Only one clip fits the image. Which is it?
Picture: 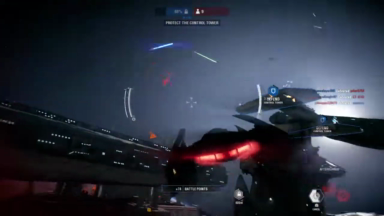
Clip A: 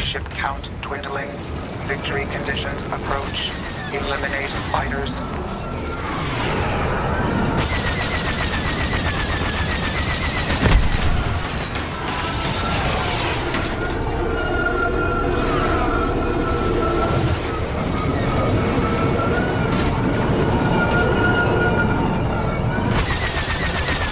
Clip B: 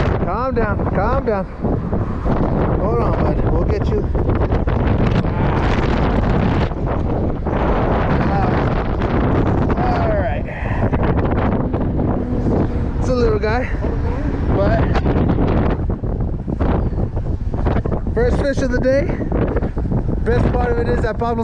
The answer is A